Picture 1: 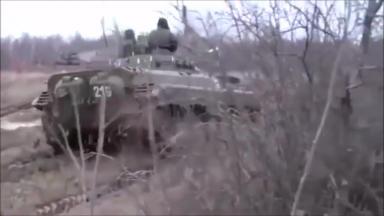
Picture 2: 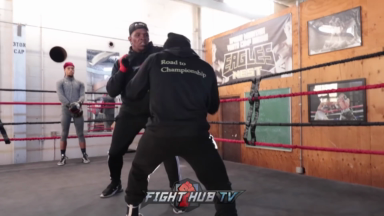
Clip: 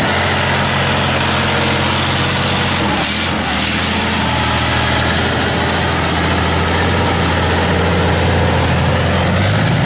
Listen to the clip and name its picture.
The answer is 1